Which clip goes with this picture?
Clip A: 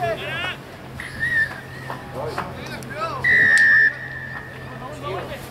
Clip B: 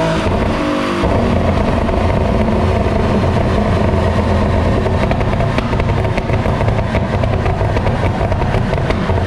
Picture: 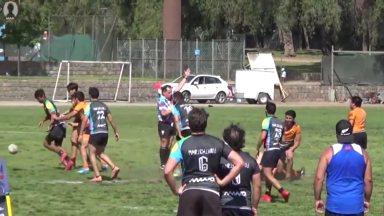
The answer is A